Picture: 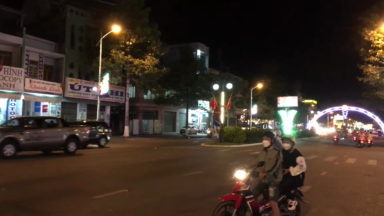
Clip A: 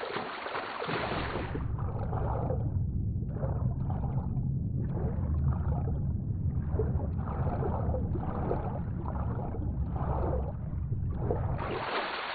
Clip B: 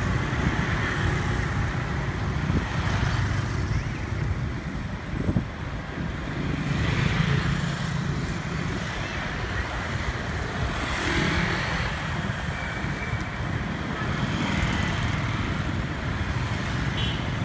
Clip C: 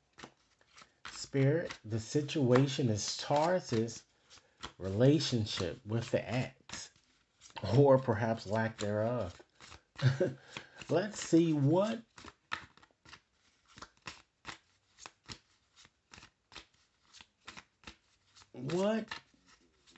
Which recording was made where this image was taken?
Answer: B